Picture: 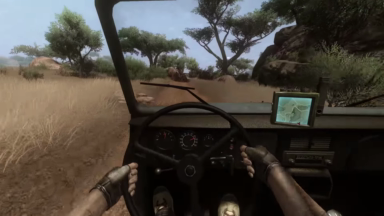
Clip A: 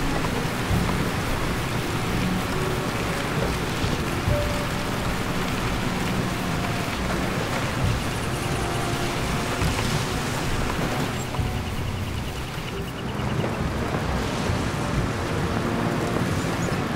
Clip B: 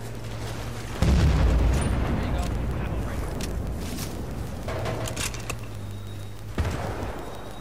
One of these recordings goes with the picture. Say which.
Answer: A